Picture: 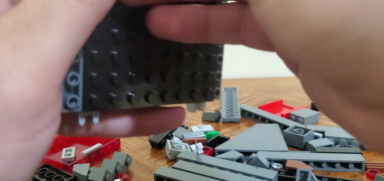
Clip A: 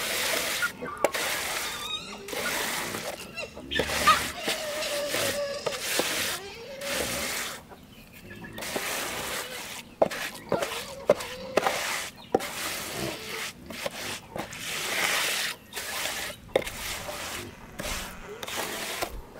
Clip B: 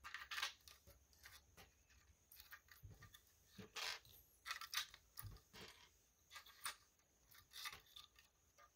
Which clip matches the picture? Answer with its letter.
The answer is B